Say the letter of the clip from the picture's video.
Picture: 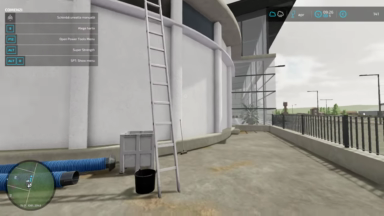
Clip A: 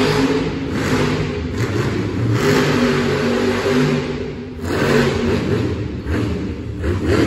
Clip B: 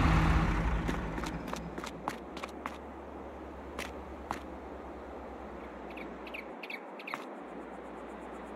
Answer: B